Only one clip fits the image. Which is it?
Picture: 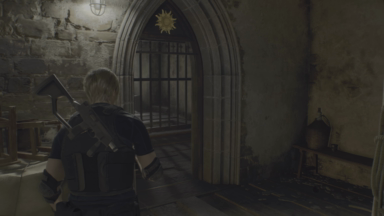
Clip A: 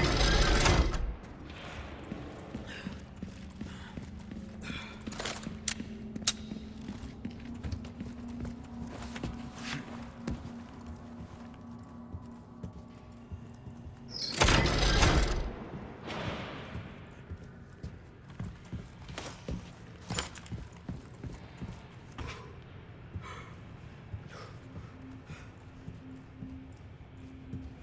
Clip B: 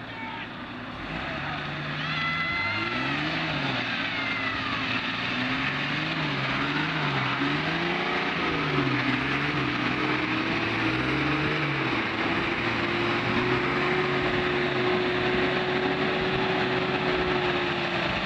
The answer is A